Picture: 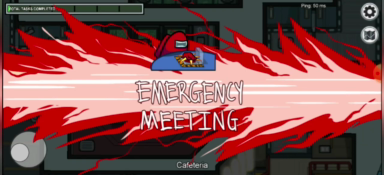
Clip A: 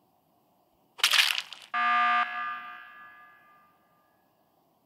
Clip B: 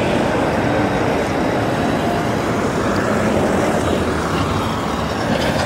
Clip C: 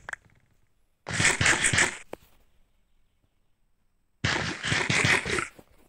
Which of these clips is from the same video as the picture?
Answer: A